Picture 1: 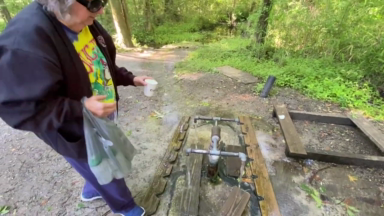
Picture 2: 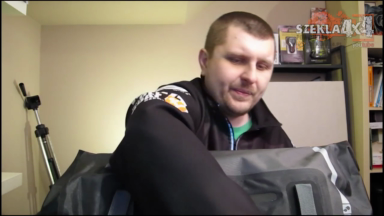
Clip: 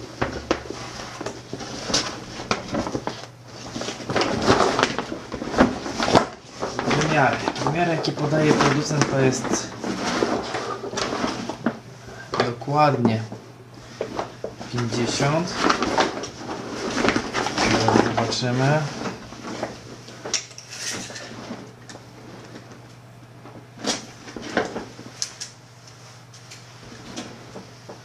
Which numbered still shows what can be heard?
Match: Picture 2